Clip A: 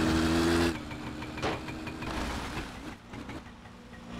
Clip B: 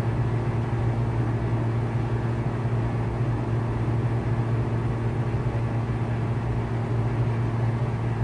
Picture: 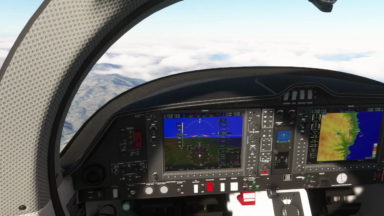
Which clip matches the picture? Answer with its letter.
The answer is B